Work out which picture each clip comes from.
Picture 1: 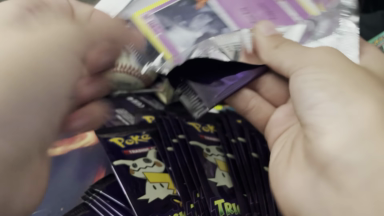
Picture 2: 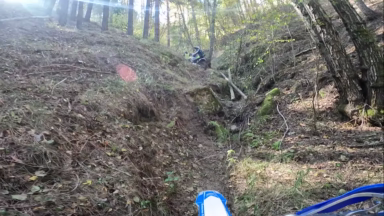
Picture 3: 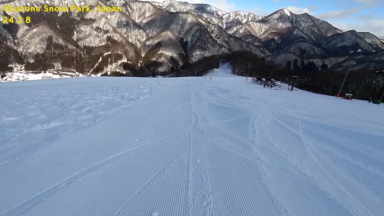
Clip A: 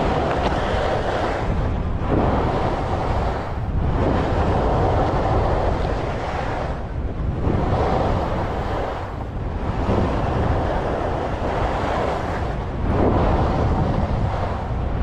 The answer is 3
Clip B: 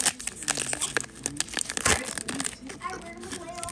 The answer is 1